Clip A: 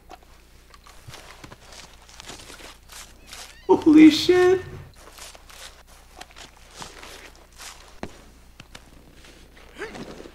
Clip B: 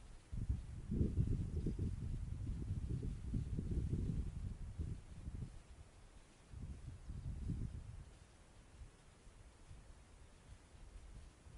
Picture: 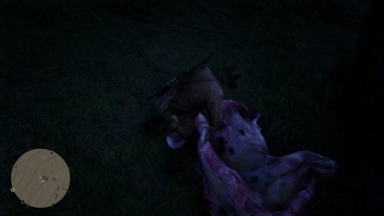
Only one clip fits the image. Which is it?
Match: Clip A